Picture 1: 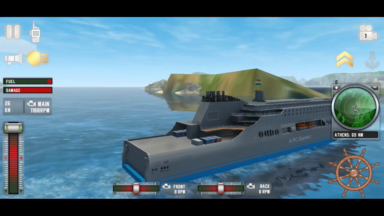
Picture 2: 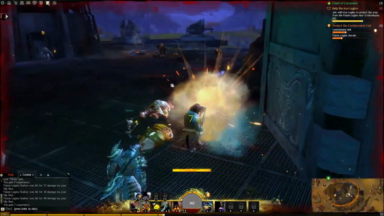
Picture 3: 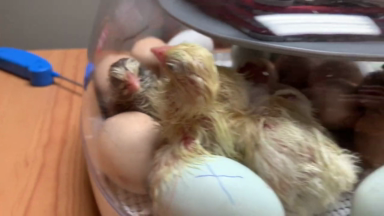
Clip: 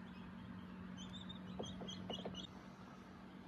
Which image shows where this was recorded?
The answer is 3